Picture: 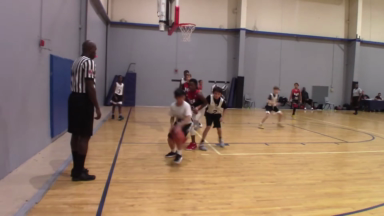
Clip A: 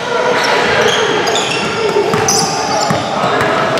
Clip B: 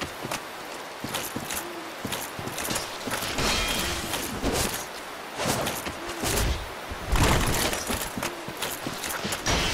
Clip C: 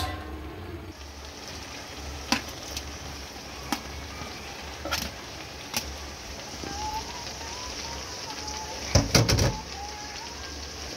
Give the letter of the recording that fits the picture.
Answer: A